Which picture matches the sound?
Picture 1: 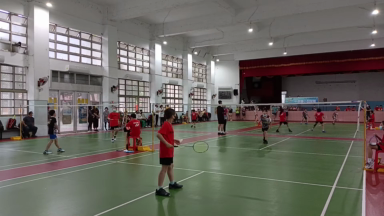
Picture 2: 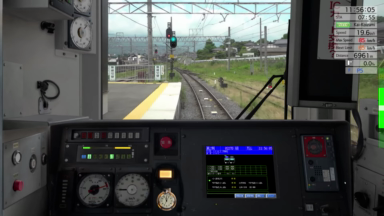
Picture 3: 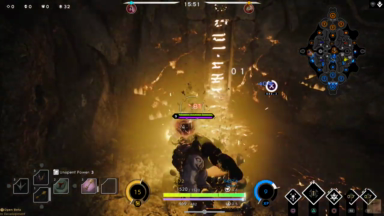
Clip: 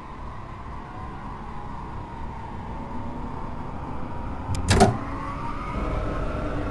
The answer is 2